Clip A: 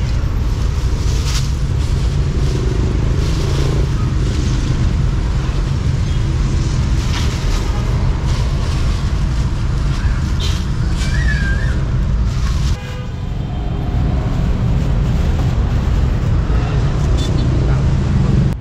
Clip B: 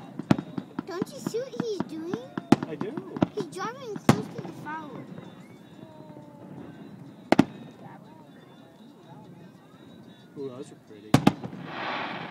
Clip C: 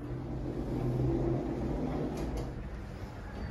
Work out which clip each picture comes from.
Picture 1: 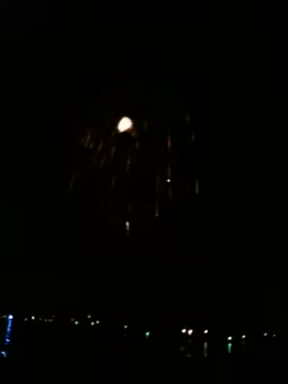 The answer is B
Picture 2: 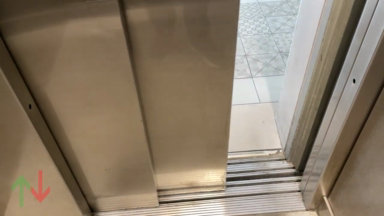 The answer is C